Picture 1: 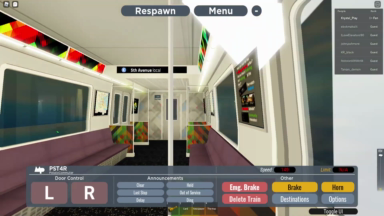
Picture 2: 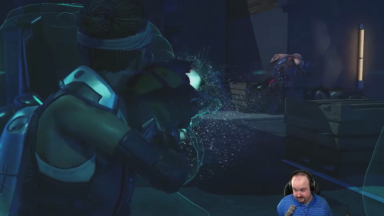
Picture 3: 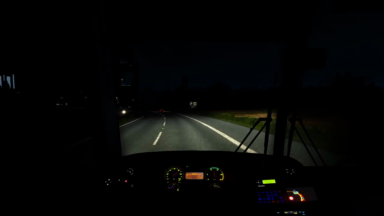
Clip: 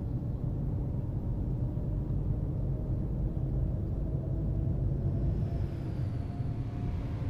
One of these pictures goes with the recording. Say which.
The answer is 3